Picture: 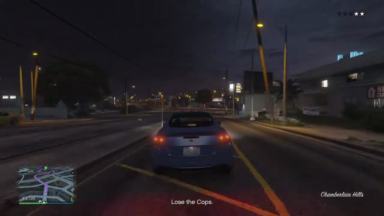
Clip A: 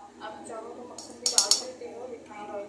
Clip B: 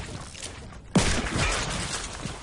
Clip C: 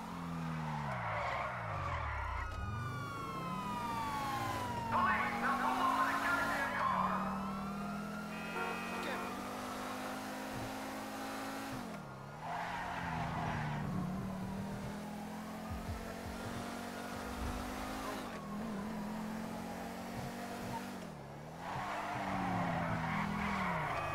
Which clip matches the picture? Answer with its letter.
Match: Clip C